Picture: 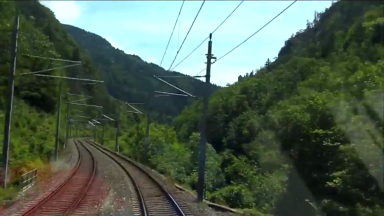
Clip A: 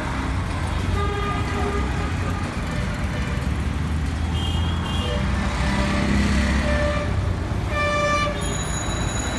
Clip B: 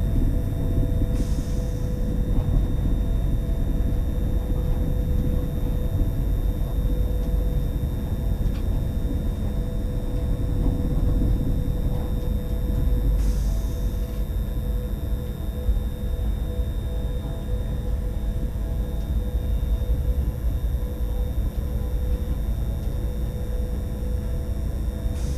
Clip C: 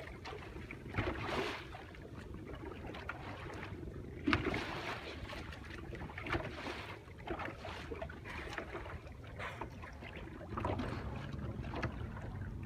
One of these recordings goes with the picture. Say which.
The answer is B